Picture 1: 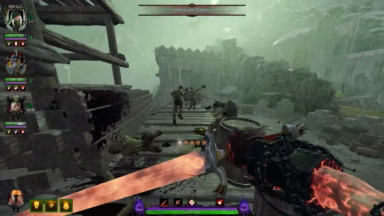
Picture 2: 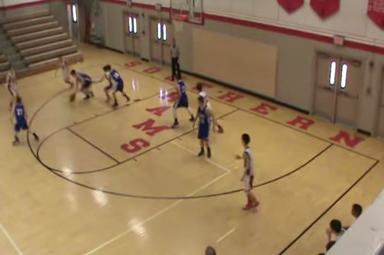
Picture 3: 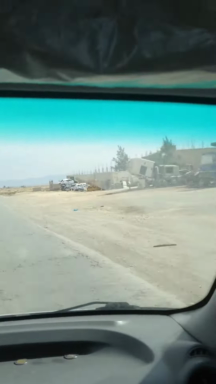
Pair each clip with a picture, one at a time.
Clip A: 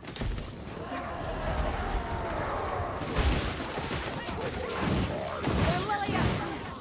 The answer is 1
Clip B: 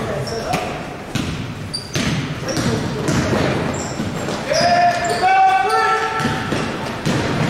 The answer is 2